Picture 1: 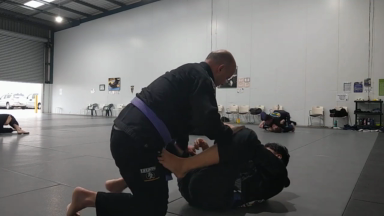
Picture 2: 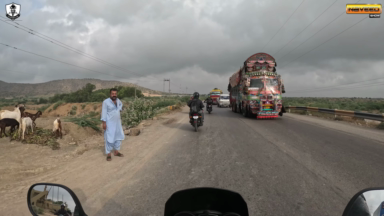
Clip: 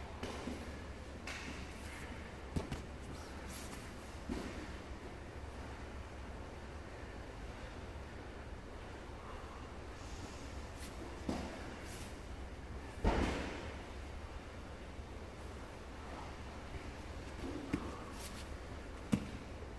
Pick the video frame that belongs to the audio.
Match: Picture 1